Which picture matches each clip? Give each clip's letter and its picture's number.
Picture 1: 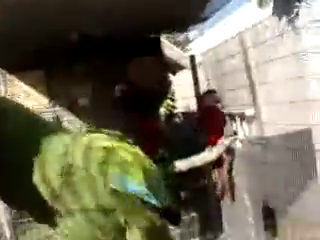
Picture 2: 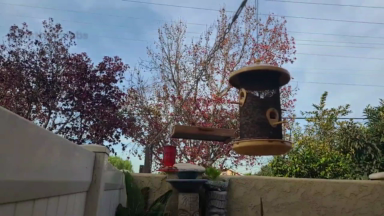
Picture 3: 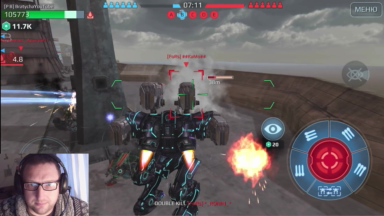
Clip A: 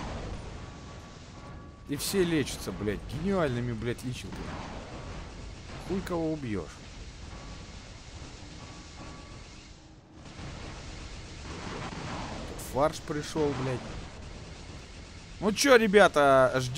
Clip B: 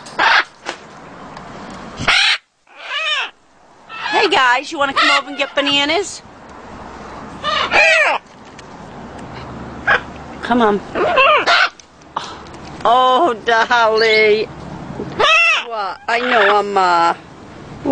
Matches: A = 3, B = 1